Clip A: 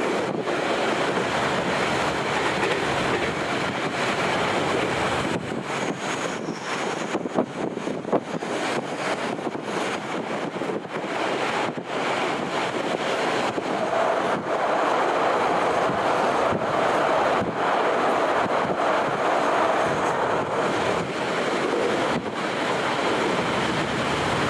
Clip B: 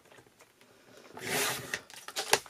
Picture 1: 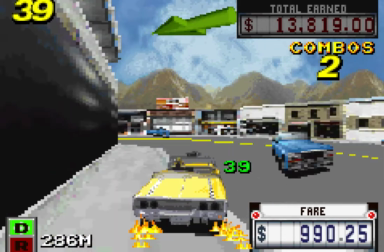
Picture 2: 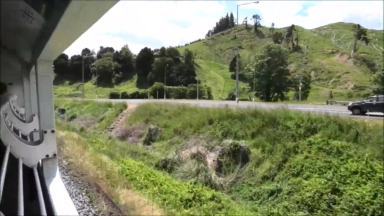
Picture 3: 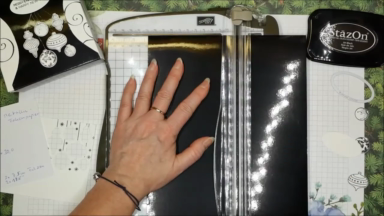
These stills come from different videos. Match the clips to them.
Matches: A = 2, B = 3